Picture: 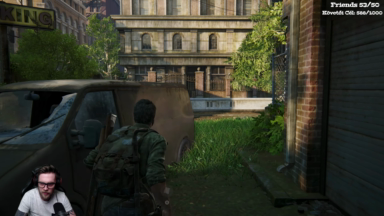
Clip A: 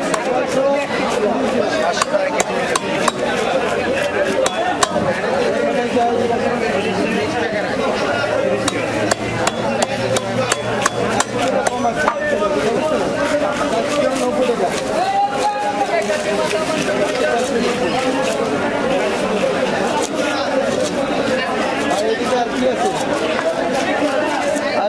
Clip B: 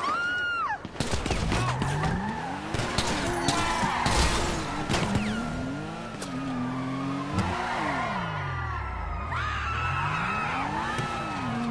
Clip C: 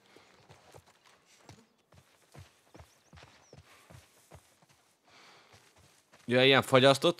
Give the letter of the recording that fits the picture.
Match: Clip C